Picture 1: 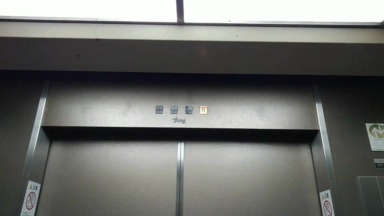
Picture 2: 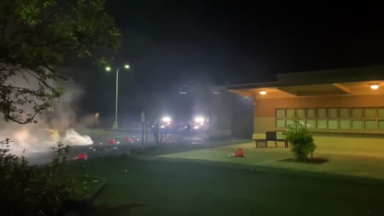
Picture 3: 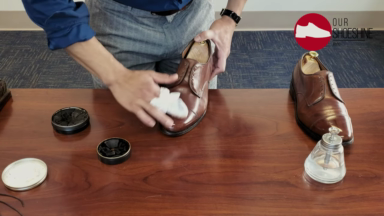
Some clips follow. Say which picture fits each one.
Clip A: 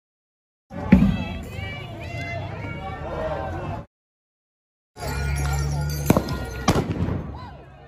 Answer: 2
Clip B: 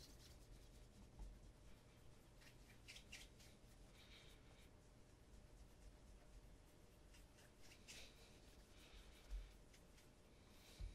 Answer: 3